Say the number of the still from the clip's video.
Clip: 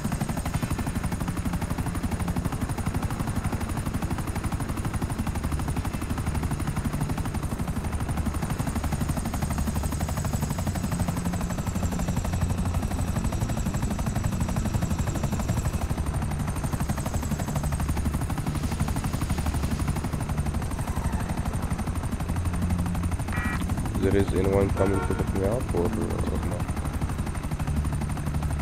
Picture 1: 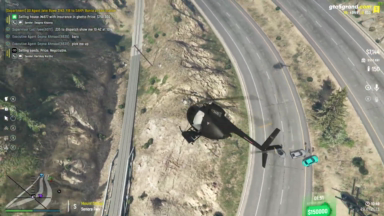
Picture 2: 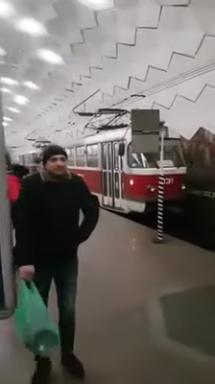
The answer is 1